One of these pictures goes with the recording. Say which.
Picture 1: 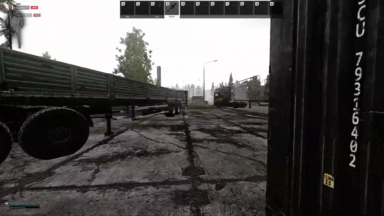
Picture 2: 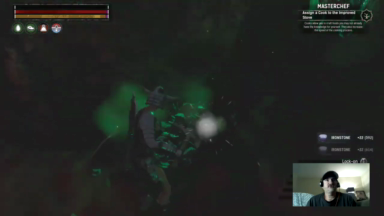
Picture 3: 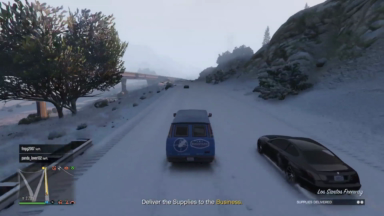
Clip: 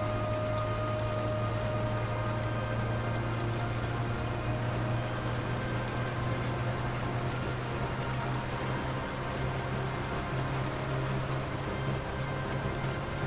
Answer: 3